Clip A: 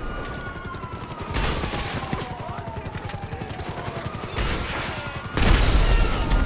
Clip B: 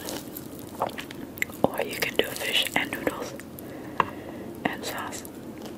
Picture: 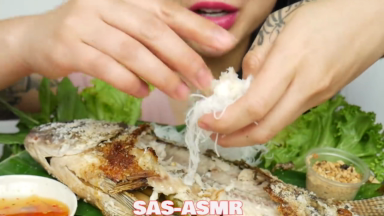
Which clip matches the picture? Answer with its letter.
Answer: B